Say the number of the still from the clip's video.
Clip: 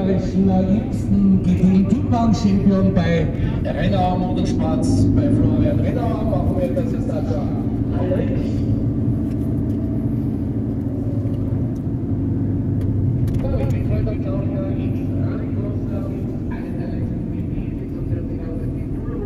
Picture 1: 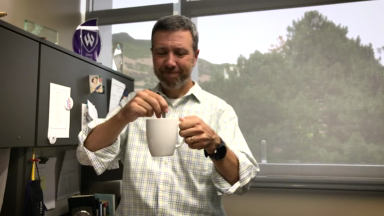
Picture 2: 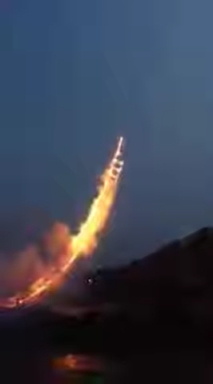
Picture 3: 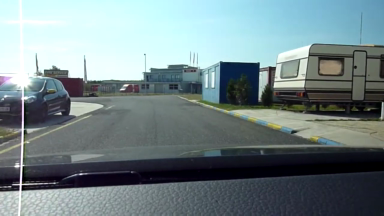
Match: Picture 3